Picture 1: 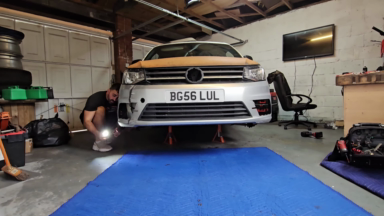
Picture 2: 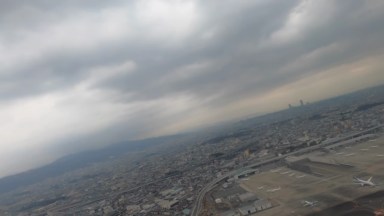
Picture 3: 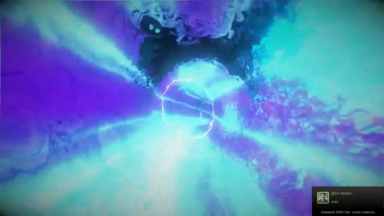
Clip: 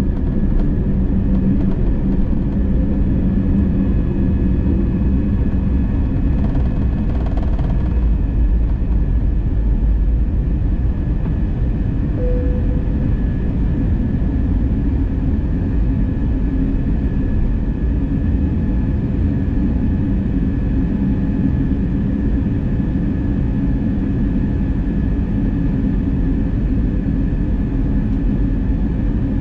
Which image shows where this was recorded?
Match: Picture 2